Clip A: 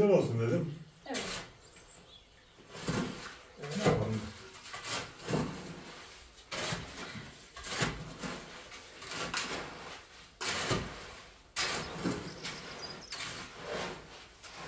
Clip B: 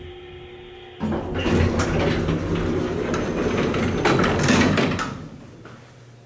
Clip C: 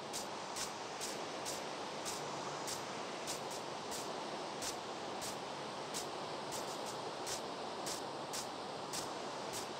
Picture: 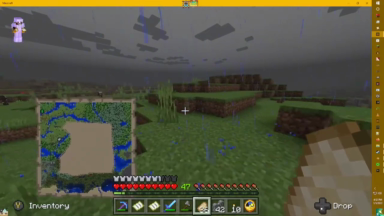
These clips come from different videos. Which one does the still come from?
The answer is C